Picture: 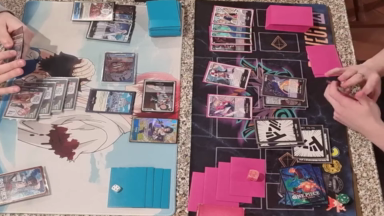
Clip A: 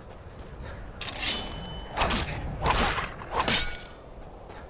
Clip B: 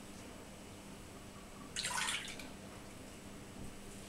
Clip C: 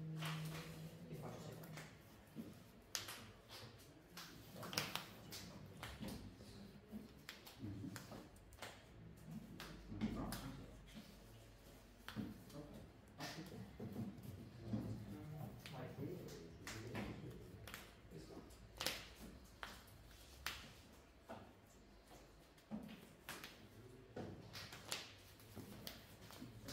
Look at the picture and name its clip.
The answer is C